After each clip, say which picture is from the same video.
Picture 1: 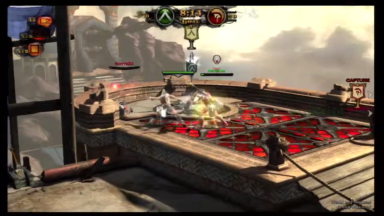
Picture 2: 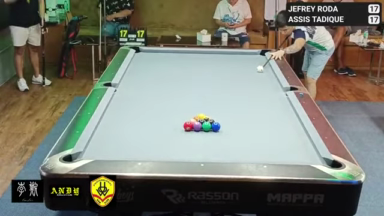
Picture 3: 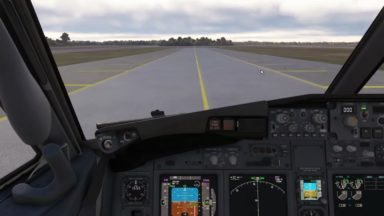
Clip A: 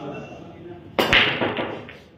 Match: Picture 2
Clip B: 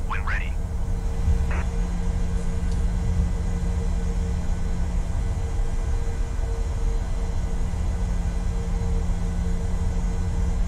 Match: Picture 3